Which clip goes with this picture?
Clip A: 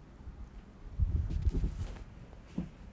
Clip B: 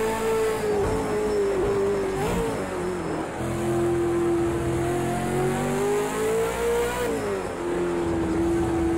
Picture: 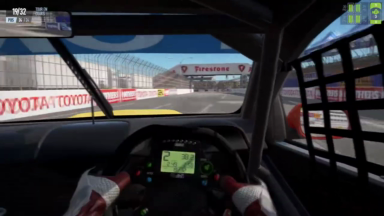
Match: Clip B